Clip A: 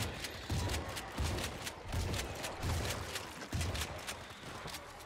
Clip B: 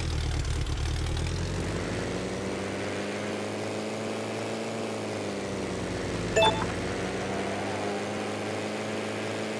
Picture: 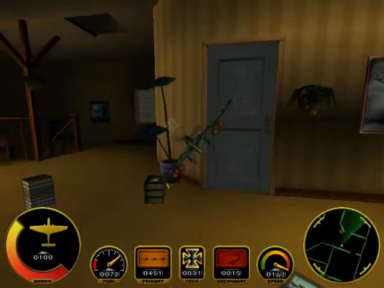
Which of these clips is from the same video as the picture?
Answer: B